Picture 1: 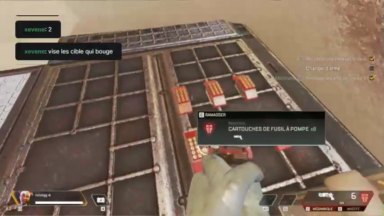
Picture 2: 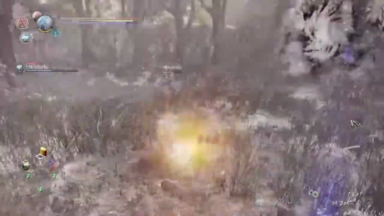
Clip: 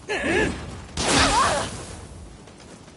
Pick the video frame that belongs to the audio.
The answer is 2